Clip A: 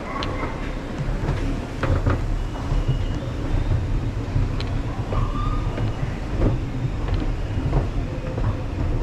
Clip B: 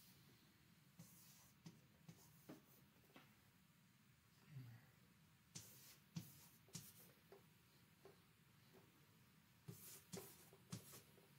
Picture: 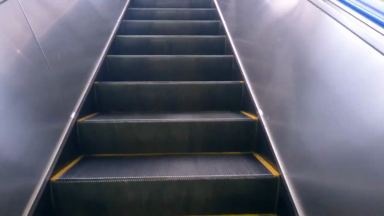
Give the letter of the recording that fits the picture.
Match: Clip A